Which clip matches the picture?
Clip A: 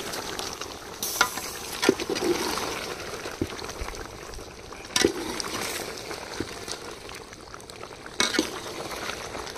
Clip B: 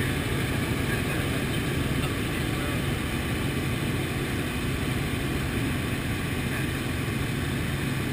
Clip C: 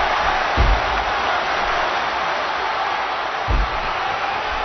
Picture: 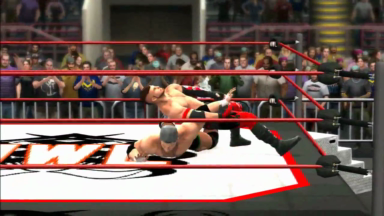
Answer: C